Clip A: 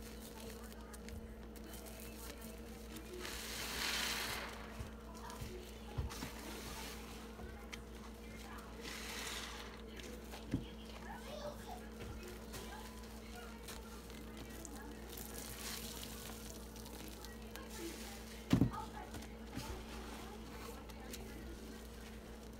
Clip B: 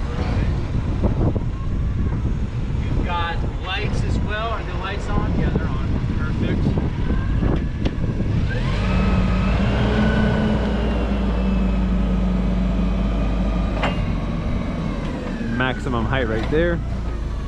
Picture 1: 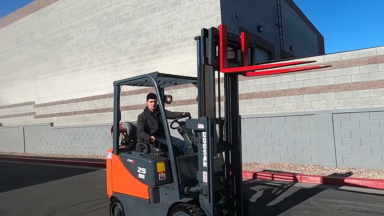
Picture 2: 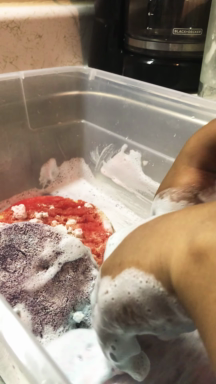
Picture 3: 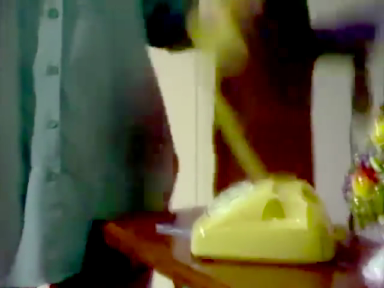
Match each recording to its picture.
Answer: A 2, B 1